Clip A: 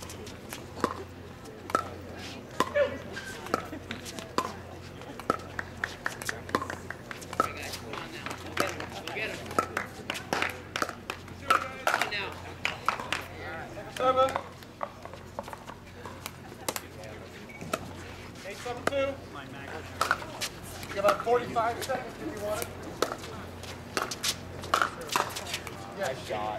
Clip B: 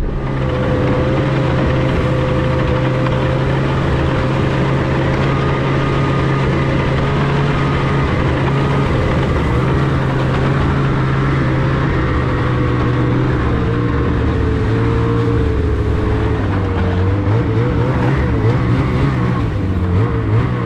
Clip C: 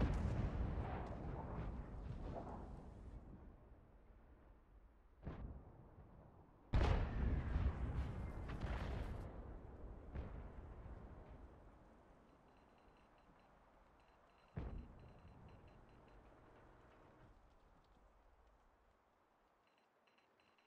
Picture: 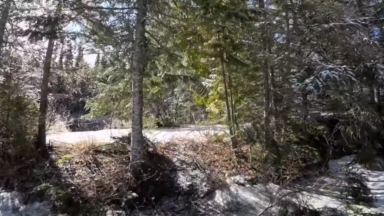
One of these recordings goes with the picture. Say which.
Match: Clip B